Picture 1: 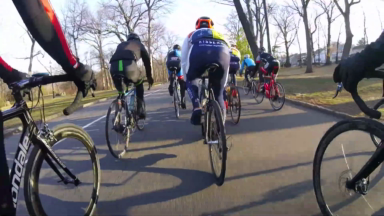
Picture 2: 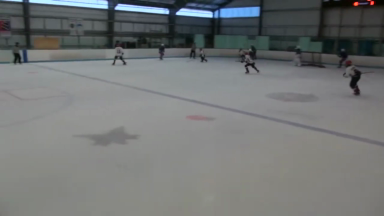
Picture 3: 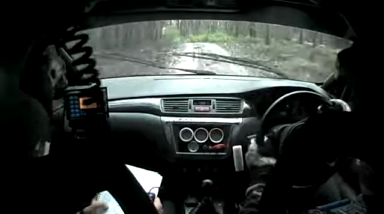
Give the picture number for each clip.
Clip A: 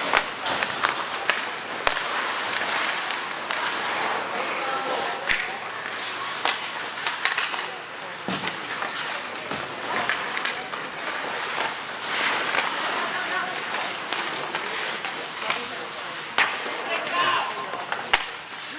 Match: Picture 2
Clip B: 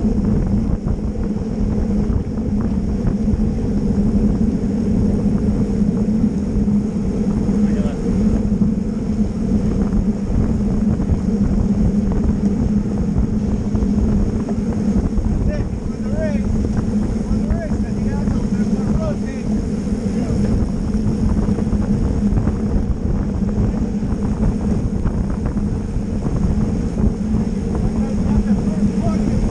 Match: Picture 1